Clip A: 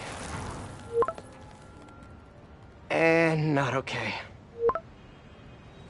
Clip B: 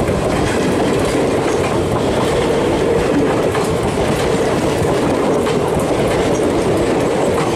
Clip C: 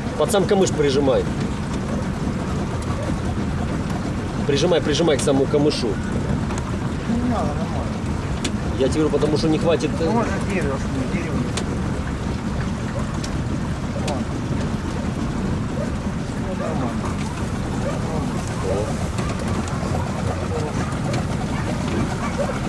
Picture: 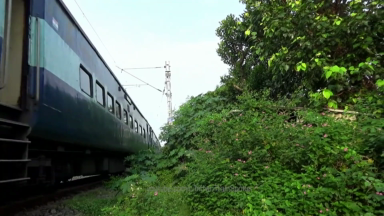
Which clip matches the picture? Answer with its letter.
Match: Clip B